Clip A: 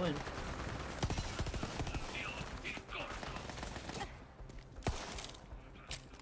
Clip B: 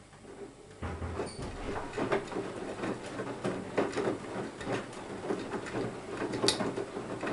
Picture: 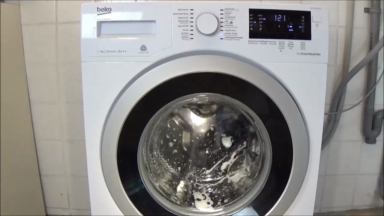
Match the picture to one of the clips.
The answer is B